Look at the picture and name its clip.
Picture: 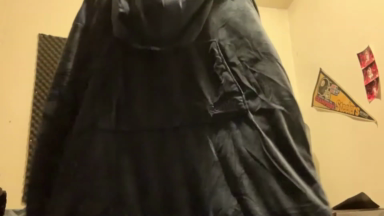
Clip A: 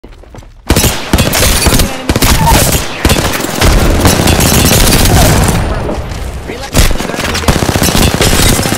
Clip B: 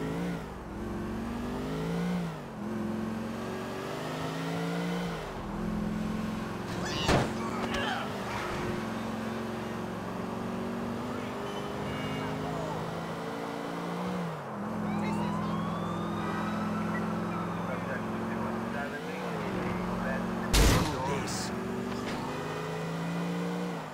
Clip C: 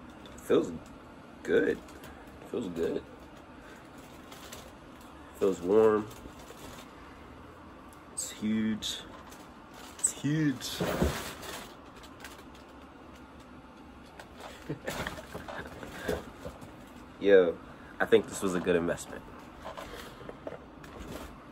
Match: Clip C